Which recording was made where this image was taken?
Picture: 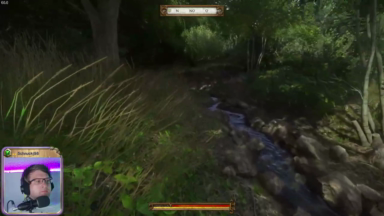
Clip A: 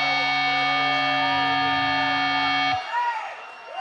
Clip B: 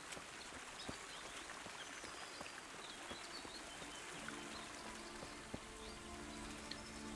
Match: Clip B